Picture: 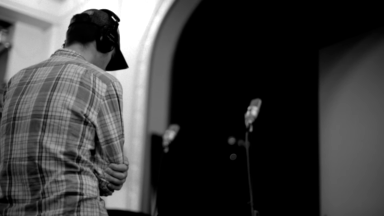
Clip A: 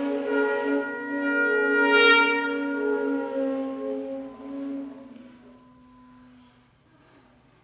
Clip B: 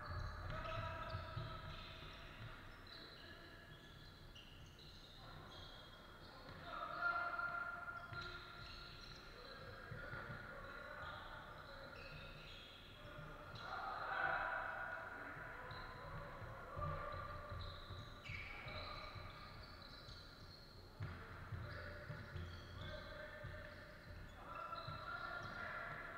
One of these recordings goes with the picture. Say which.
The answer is A